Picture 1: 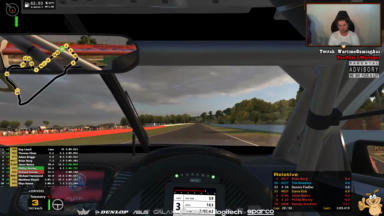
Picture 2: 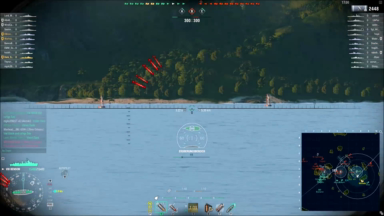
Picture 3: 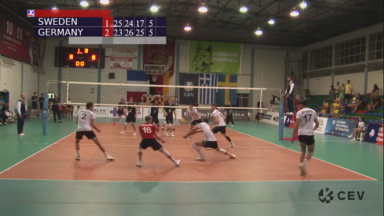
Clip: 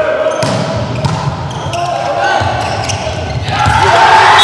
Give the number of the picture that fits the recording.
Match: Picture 3